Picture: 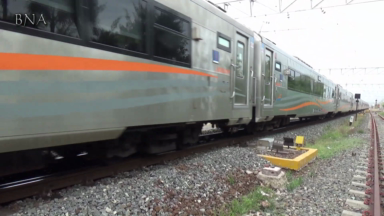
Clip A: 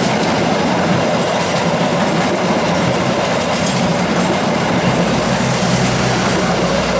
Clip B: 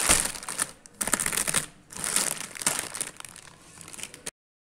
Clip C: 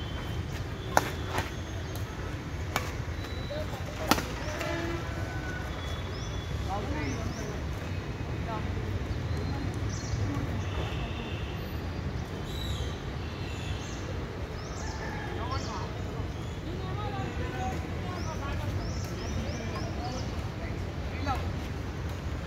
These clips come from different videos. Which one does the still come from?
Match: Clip A